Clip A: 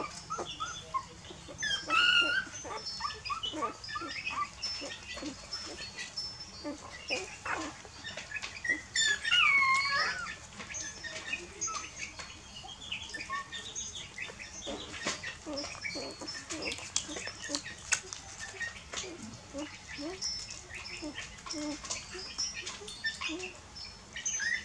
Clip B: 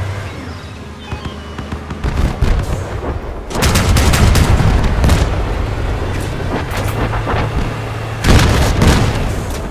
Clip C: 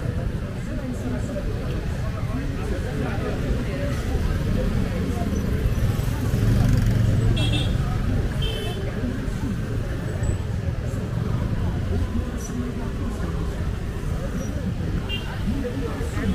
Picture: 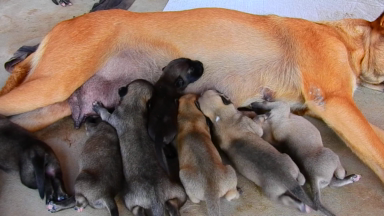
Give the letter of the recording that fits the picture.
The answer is A